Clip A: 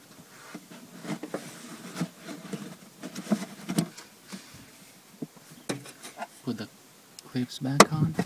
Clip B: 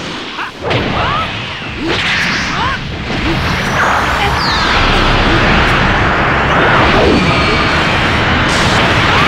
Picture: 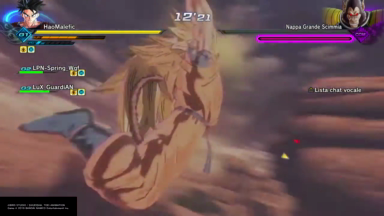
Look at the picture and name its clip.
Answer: B